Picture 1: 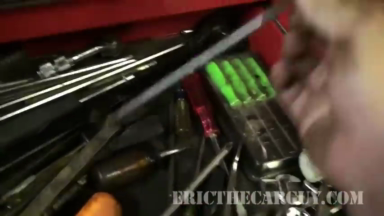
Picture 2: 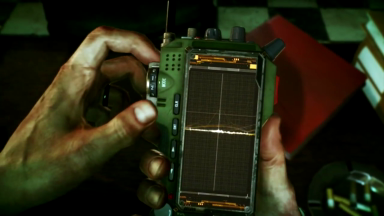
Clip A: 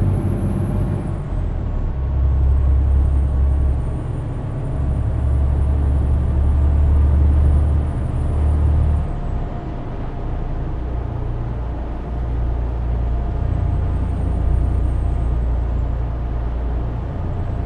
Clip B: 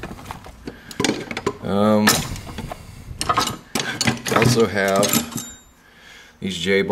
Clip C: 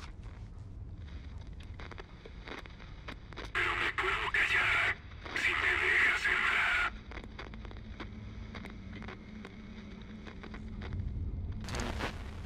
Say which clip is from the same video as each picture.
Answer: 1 B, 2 C